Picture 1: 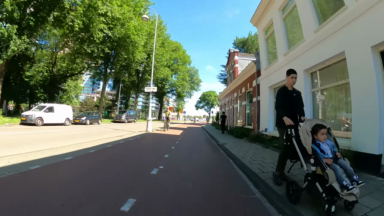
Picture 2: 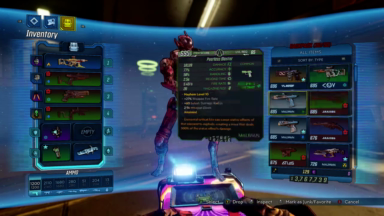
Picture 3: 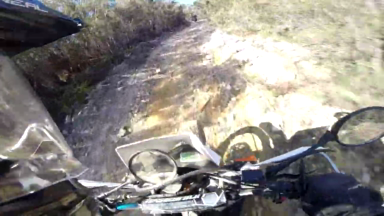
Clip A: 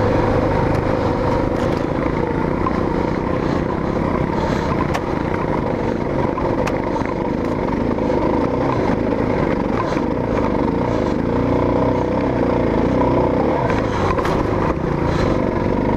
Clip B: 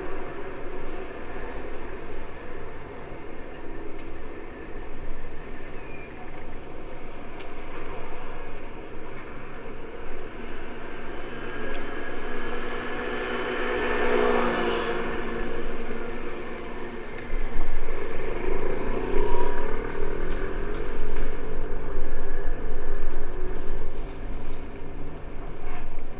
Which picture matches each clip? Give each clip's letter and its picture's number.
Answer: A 3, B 1